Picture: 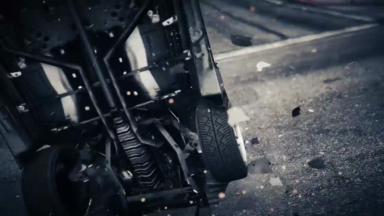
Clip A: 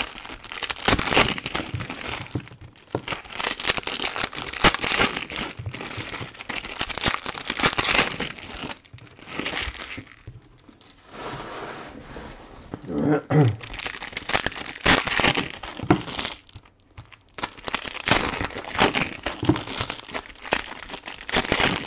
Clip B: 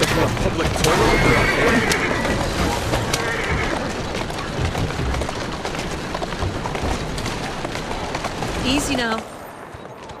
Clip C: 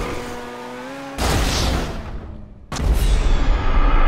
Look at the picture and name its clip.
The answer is C